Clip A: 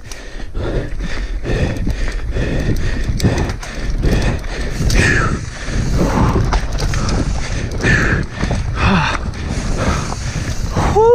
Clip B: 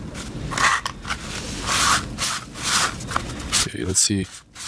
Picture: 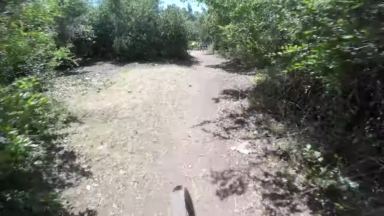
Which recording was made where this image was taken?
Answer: A